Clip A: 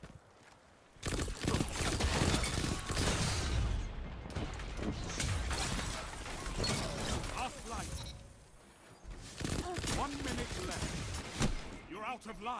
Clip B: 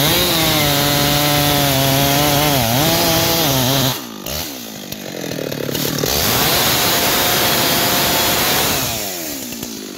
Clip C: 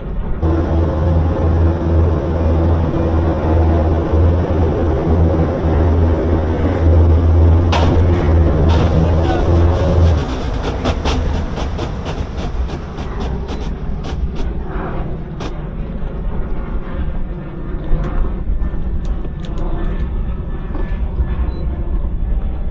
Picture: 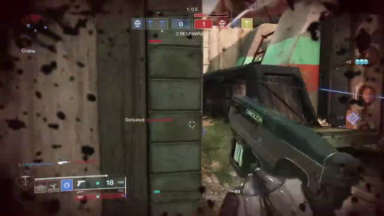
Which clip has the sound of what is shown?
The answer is A